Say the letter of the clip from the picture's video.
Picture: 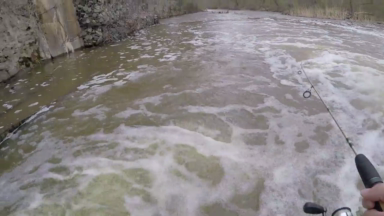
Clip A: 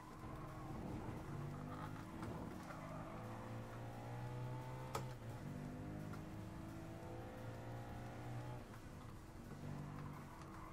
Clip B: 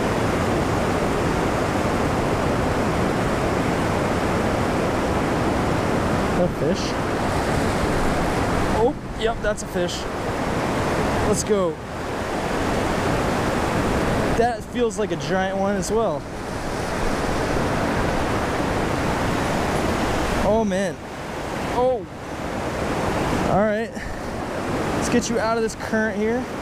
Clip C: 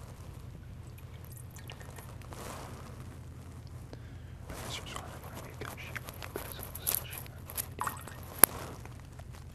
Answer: B